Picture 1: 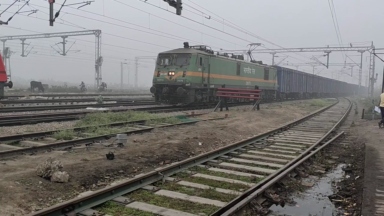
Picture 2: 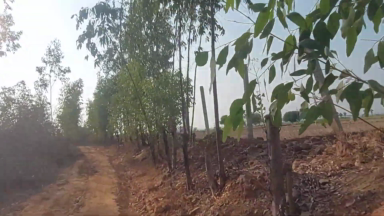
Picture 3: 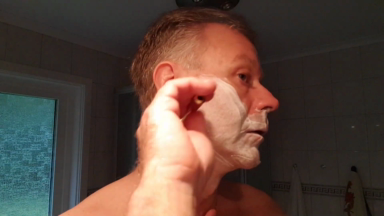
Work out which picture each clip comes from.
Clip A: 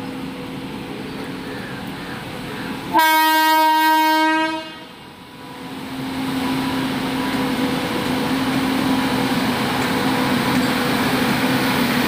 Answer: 1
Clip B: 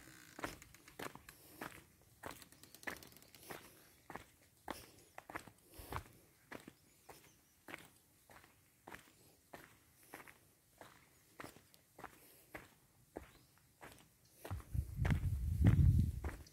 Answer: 2